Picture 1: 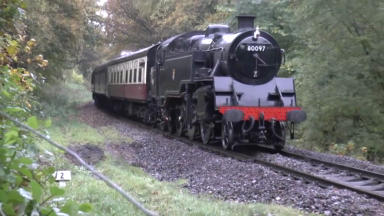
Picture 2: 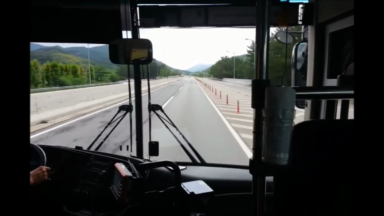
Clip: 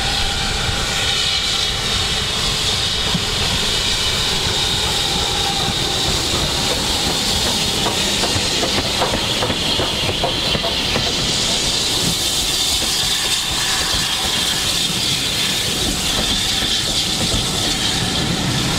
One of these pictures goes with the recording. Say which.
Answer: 1